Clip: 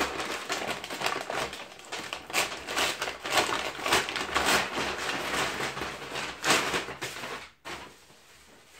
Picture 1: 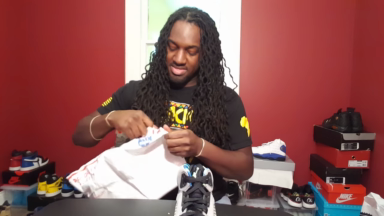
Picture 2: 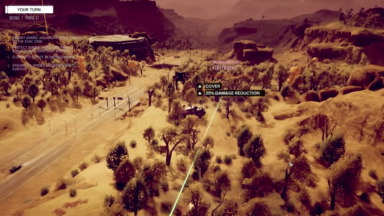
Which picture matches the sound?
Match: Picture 1